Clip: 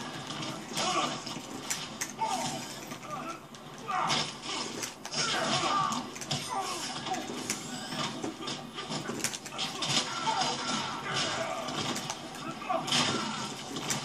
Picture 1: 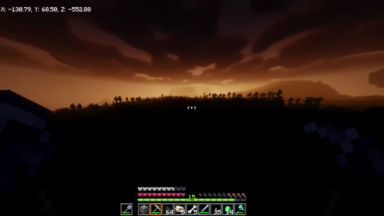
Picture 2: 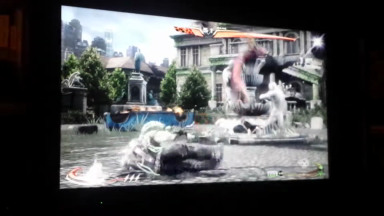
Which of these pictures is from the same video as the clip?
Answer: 2